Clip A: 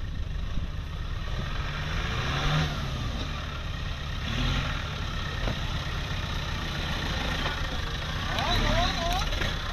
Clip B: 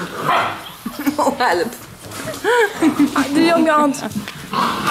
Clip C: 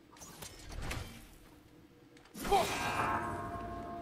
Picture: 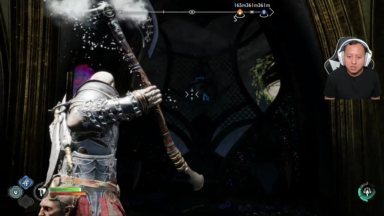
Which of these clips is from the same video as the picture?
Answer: C